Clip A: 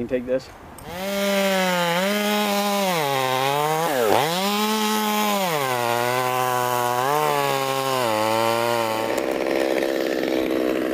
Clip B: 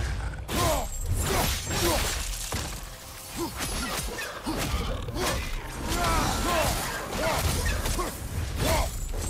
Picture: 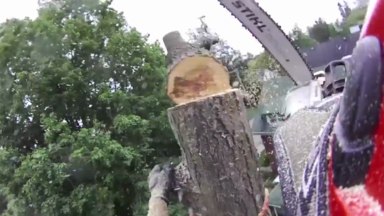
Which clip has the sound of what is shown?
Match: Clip A